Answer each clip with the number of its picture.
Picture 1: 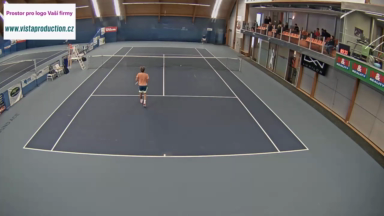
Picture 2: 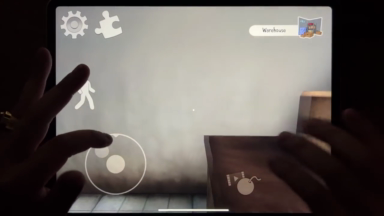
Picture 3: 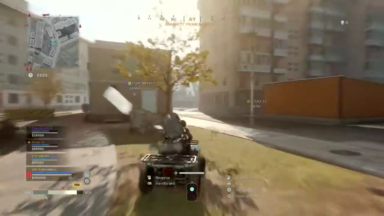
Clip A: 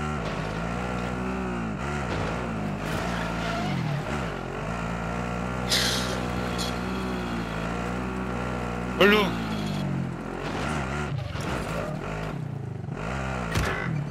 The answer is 3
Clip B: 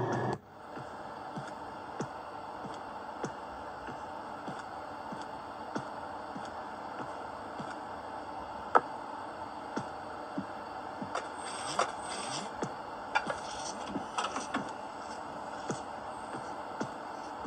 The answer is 2